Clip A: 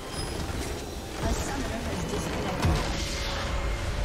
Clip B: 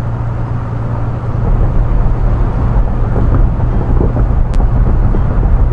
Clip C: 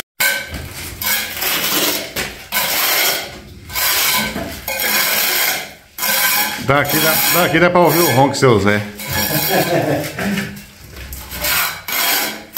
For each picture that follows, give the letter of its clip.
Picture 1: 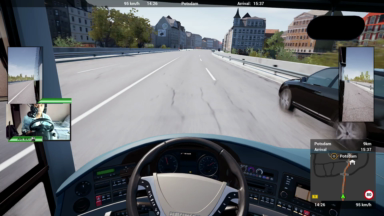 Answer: B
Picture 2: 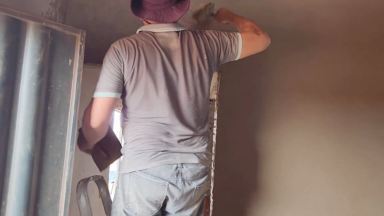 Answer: C